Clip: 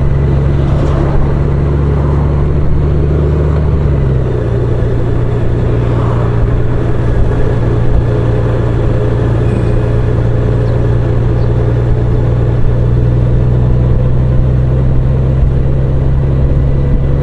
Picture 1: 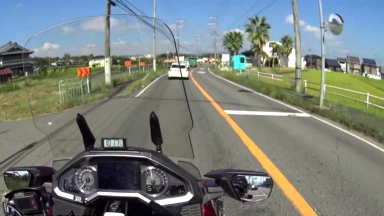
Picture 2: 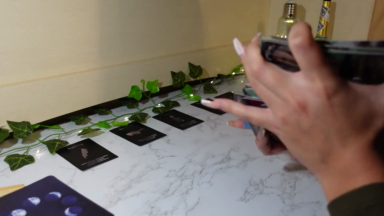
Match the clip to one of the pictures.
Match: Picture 1